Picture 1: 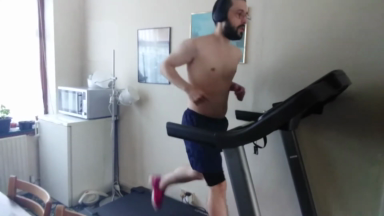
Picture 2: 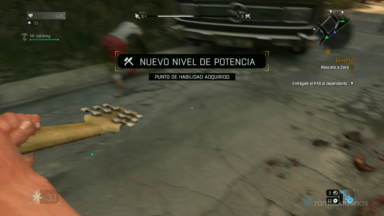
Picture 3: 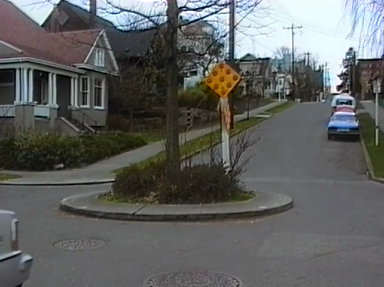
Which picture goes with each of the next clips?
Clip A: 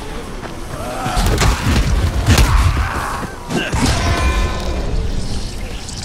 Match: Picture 2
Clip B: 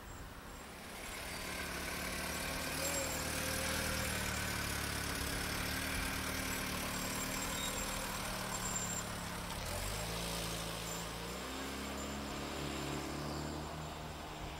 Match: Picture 3